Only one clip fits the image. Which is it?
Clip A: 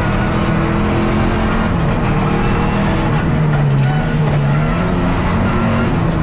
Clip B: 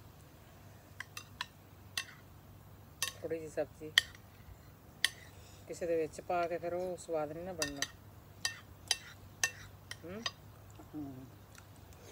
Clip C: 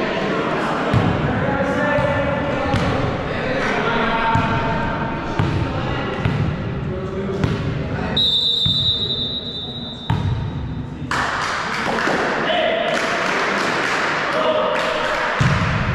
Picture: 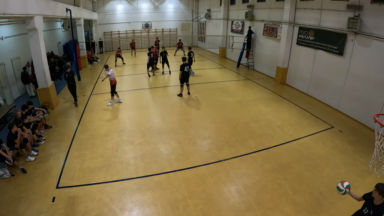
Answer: C